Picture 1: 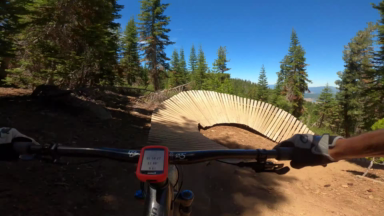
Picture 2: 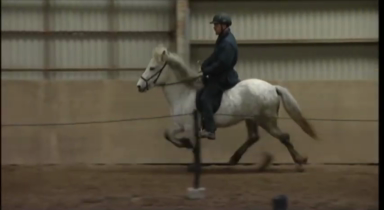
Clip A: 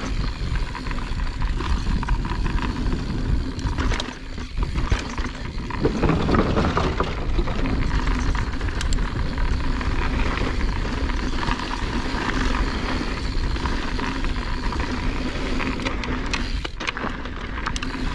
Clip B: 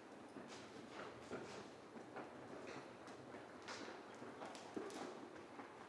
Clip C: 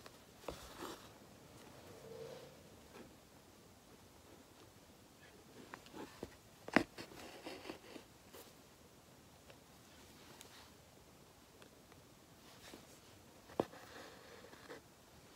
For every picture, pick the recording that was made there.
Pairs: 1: A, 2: B